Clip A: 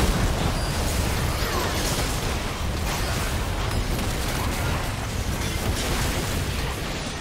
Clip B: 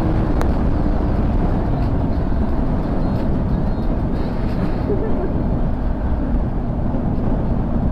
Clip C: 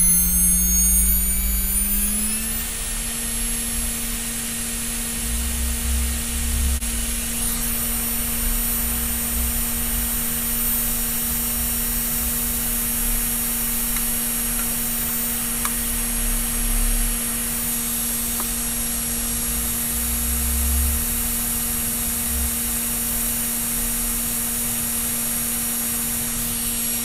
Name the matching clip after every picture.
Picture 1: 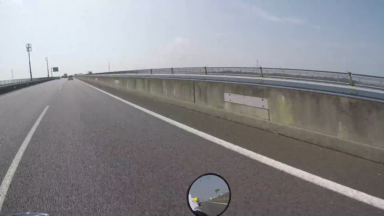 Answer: B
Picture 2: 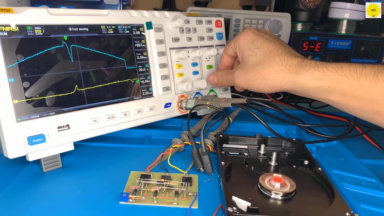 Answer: C